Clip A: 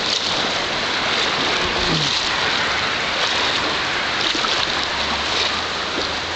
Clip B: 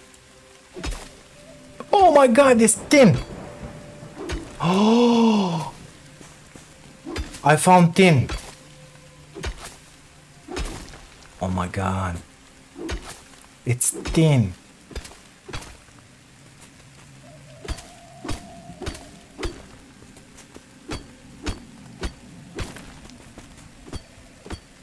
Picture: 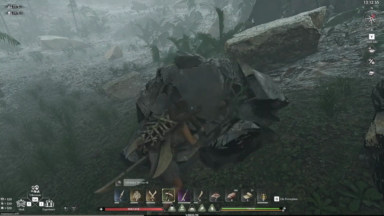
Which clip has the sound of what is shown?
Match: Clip B